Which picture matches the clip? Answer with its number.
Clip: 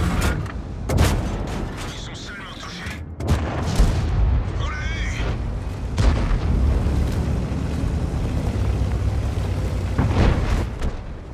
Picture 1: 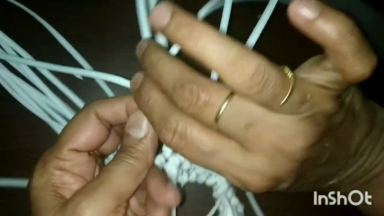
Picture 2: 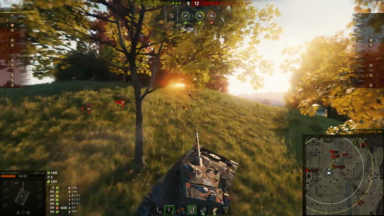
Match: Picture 2